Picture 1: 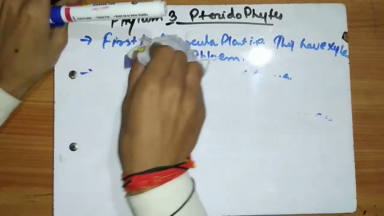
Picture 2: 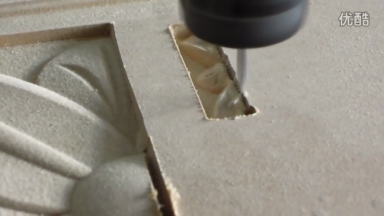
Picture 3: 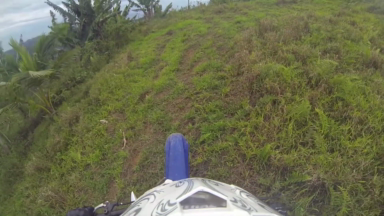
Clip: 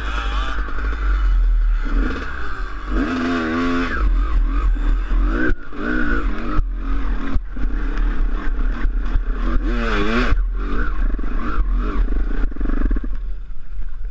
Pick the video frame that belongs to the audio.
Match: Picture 3